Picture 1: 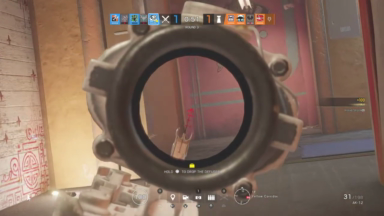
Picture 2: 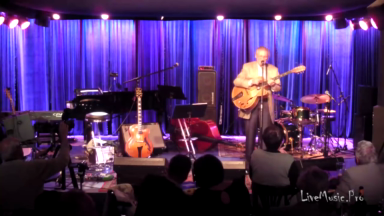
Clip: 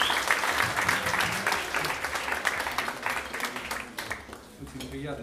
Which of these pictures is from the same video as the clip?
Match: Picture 2